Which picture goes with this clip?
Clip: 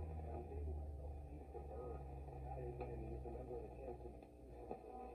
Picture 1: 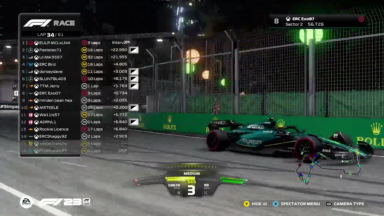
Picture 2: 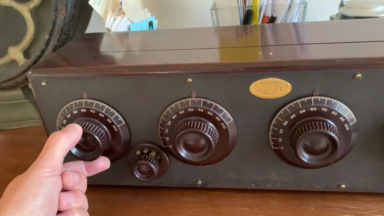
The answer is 2